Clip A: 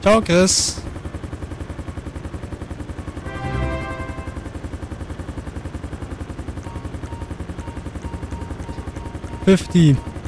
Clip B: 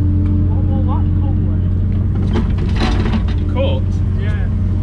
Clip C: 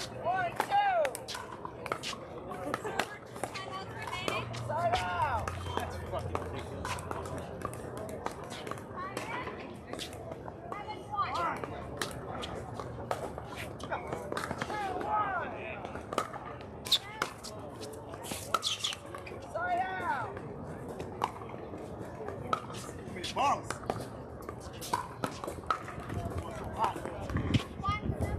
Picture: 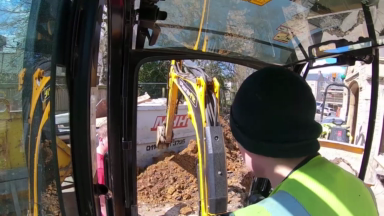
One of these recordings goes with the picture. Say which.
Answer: B